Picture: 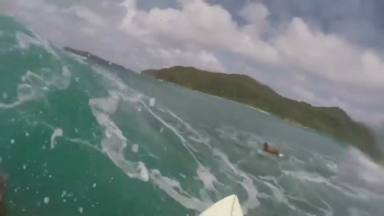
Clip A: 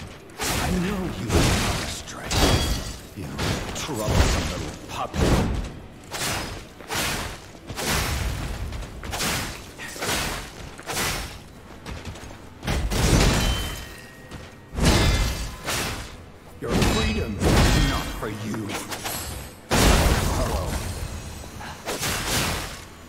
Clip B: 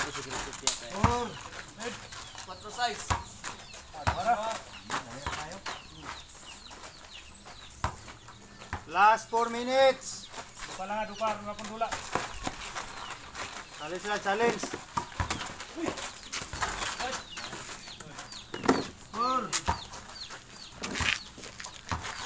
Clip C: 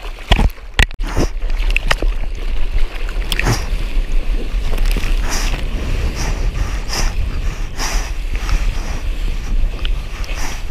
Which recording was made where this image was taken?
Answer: C